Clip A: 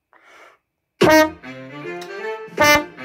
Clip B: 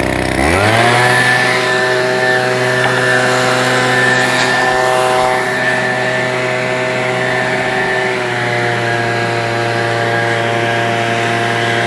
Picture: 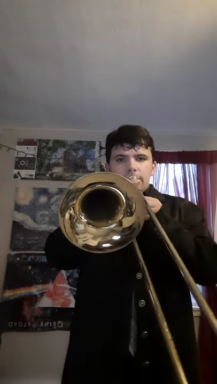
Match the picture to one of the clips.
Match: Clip A